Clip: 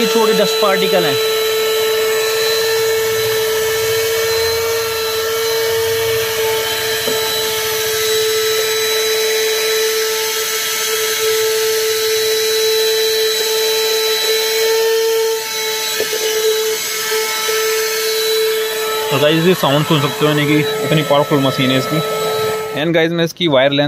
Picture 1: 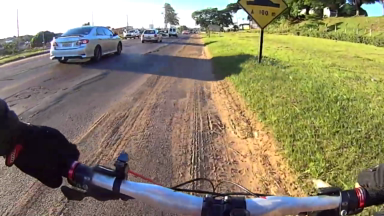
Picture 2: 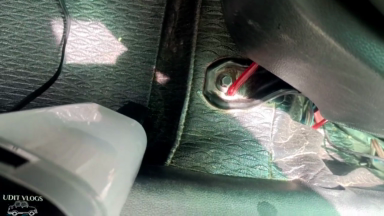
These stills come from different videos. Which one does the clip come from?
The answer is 2